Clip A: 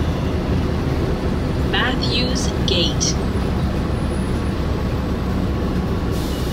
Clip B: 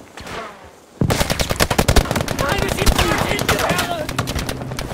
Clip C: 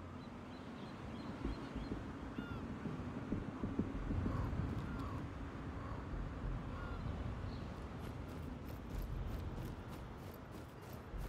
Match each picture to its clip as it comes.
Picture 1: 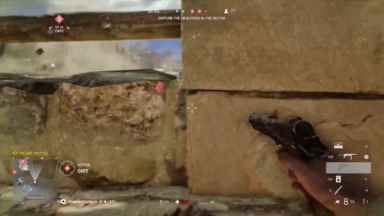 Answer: B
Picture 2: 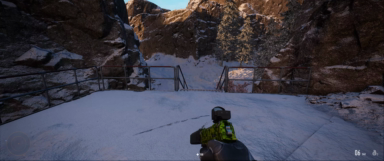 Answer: C